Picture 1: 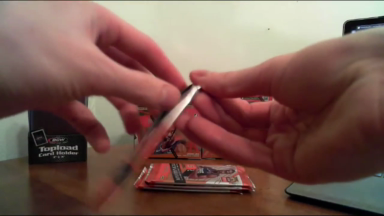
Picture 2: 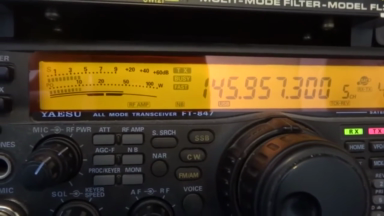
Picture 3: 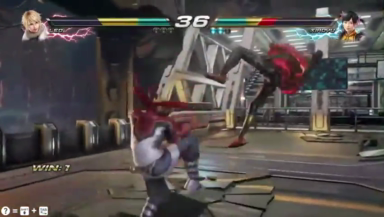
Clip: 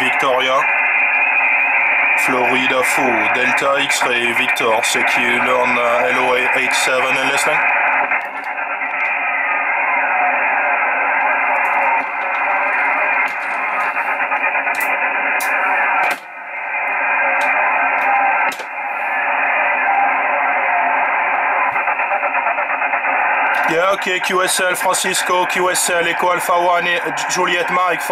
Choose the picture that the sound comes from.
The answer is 2